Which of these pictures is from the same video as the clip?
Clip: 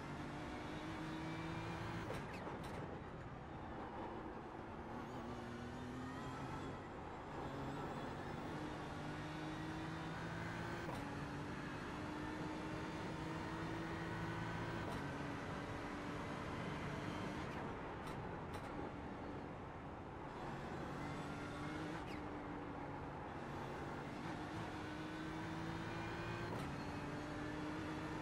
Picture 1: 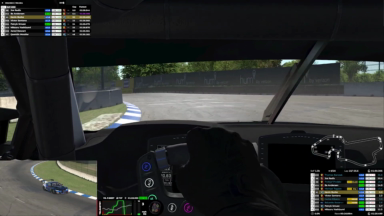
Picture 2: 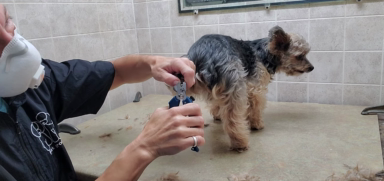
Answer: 1